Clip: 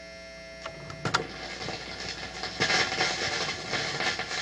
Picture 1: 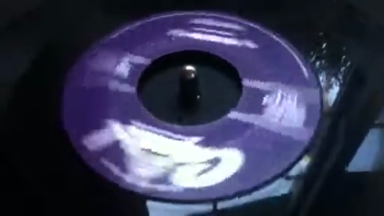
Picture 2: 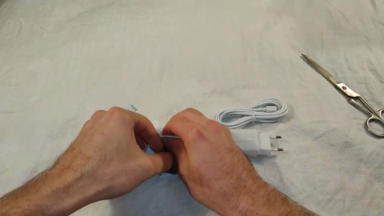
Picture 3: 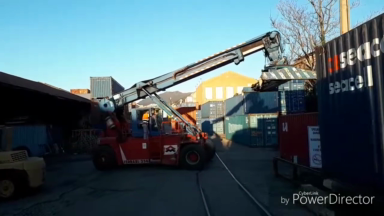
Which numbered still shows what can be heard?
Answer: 1